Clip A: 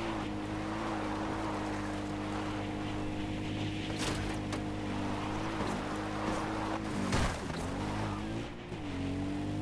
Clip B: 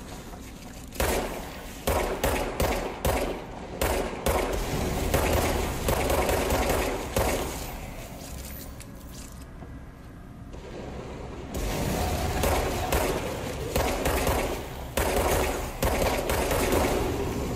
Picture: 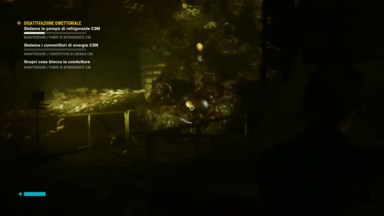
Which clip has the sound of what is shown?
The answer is B